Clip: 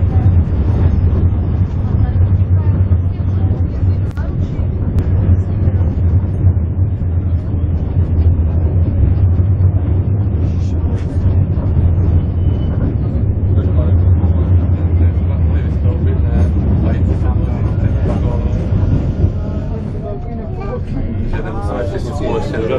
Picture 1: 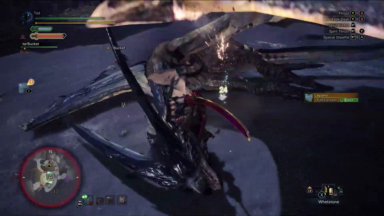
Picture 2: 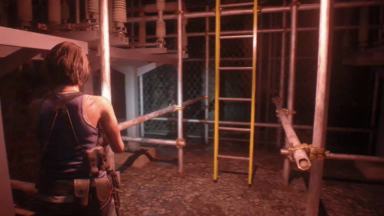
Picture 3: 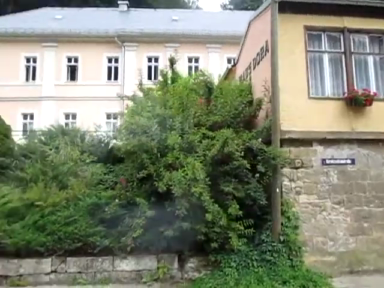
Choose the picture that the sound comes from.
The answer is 3